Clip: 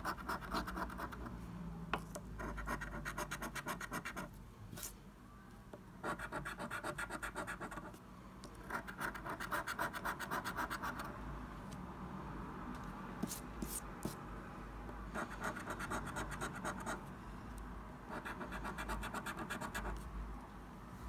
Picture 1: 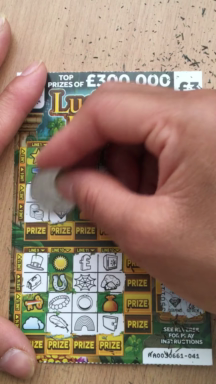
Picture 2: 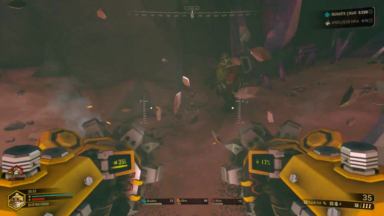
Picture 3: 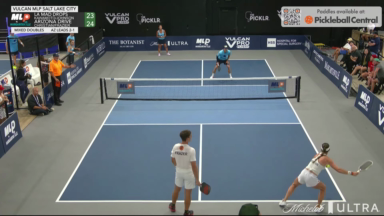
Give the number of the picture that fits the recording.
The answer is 1